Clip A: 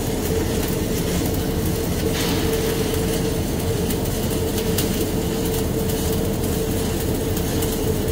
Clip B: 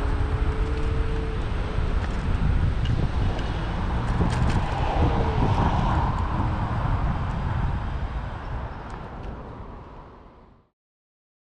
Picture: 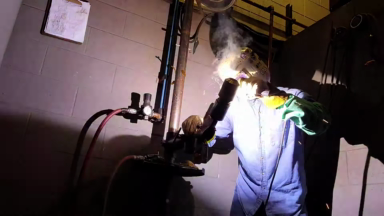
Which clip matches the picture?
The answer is A